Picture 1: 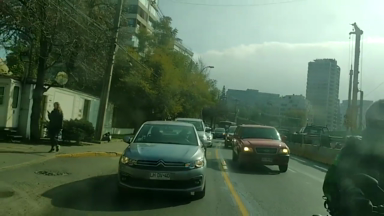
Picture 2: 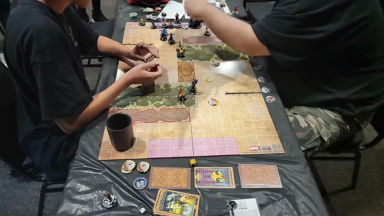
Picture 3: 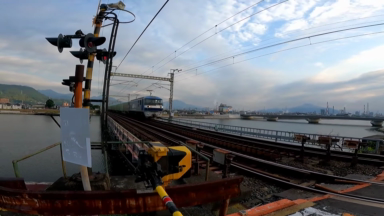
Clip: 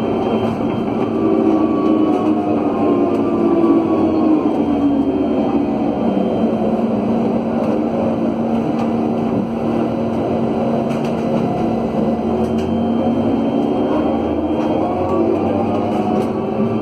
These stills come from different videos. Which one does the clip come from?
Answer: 1